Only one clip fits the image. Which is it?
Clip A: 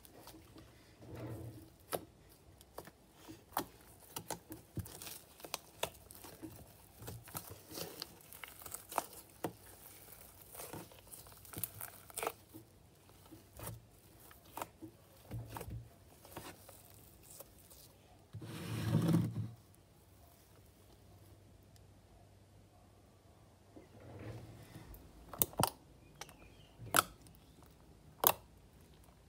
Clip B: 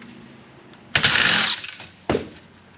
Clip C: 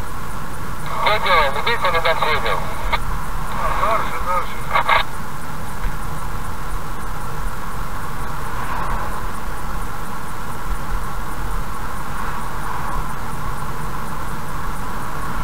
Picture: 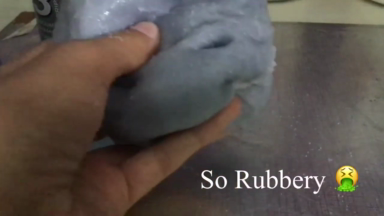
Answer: A